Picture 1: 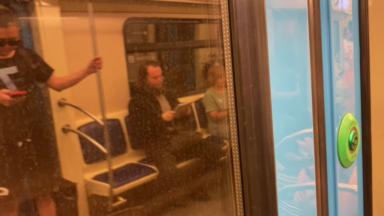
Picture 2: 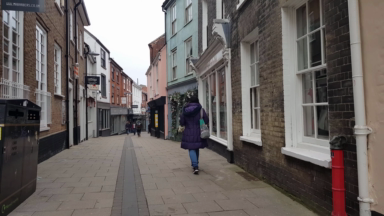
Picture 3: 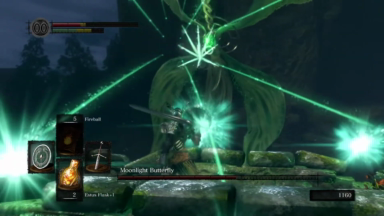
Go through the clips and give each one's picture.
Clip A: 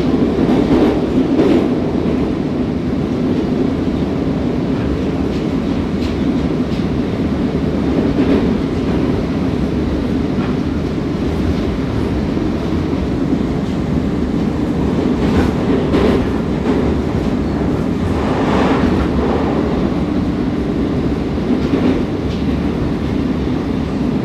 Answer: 1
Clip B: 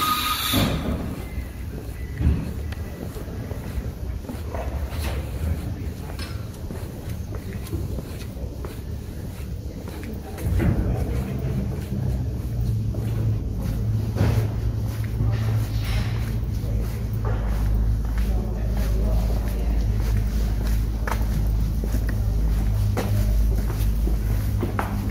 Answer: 2